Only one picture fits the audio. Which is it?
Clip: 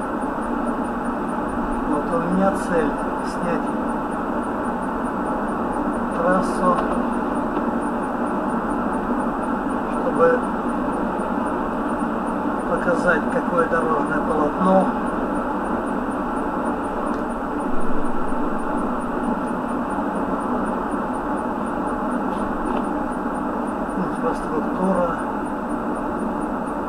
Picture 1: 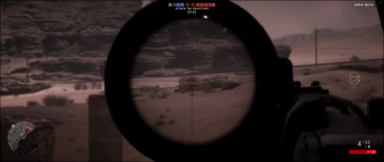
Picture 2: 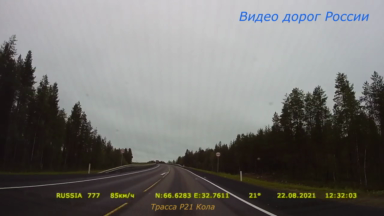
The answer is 2